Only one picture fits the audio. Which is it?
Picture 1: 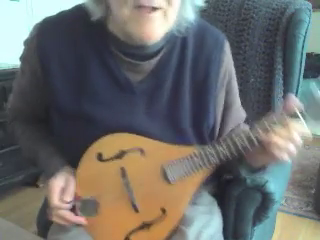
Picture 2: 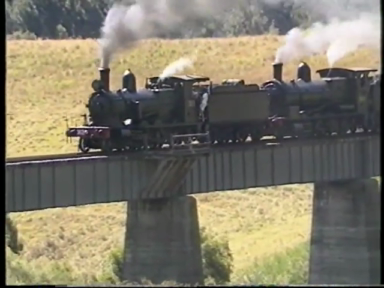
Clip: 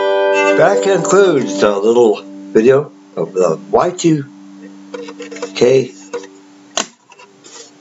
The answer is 1